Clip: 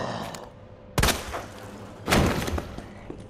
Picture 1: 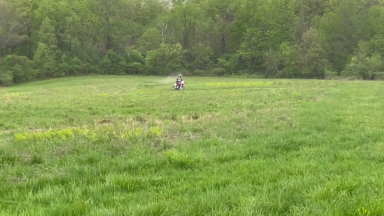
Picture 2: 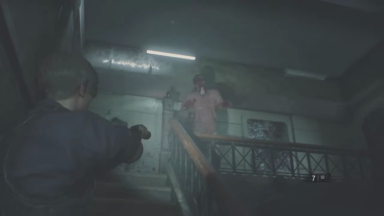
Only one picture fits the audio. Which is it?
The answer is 2